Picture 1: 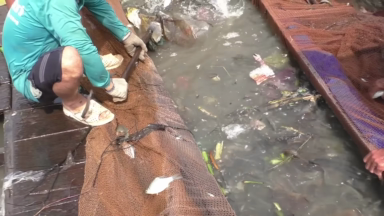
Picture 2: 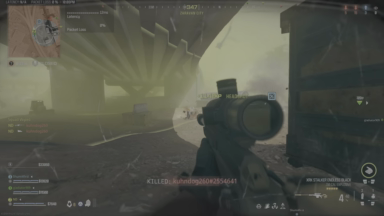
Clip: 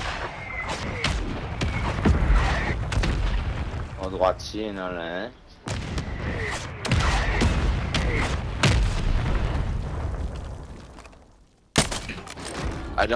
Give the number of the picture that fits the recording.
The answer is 2